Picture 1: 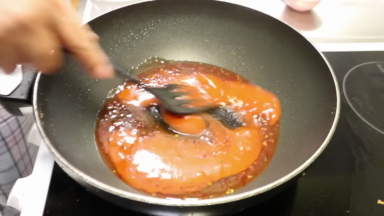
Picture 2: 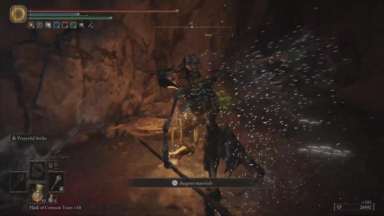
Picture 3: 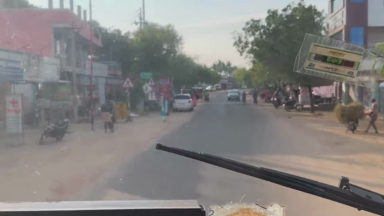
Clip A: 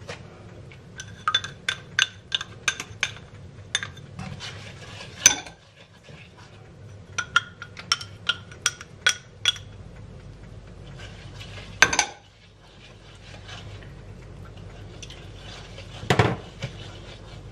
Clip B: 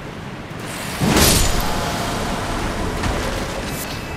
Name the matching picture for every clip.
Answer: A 1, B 2